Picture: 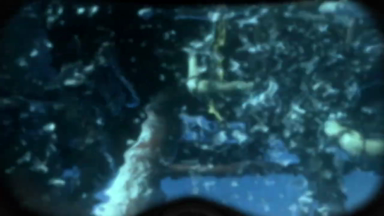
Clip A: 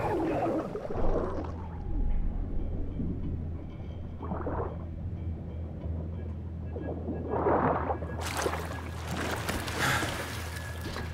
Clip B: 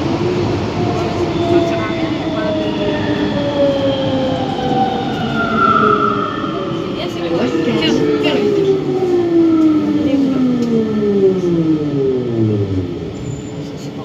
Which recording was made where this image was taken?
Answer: A